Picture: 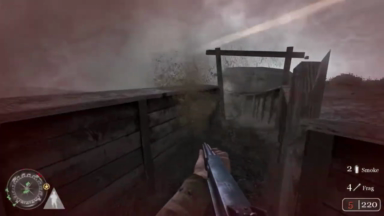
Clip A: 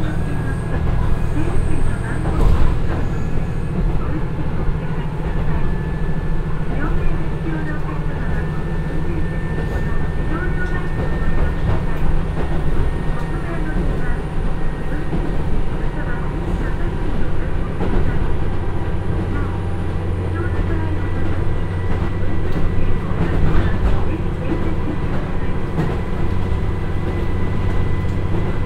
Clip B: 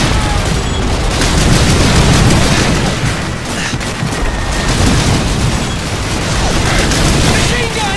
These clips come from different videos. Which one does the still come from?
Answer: B